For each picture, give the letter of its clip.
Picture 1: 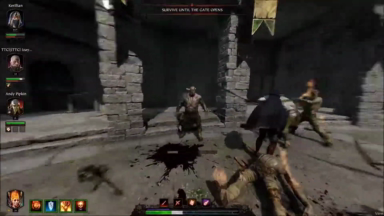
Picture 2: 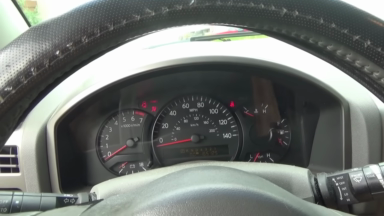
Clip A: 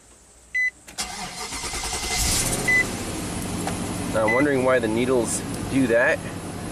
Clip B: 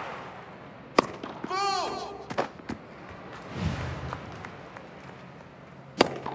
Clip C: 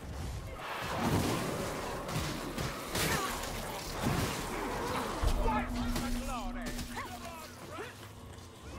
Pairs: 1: C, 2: A